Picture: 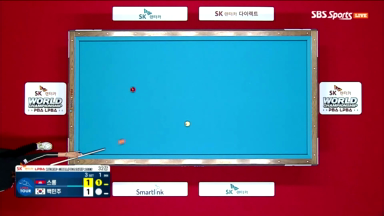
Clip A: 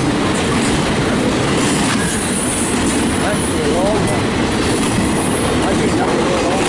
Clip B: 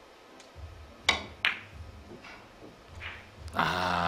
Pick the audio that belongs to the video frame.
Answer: B